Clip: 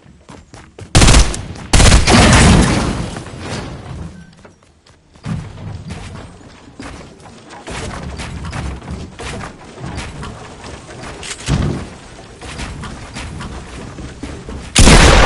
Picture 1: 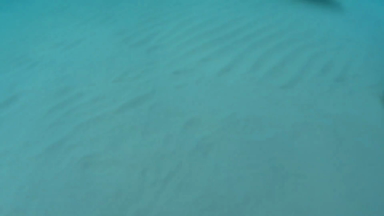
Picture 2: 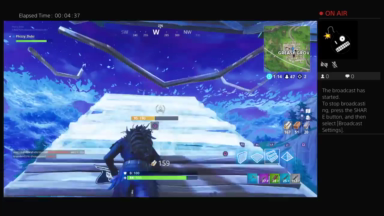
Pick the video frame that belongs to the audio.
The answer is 2